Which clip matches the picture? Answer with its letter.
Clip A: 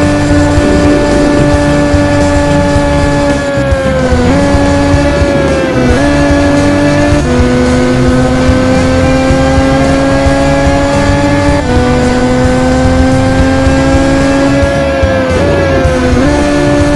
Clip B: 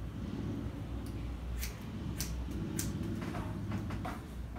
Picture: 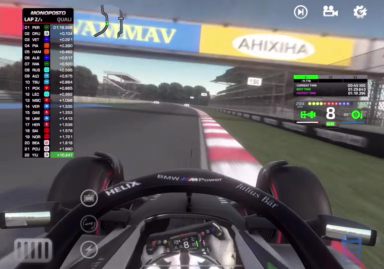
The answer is A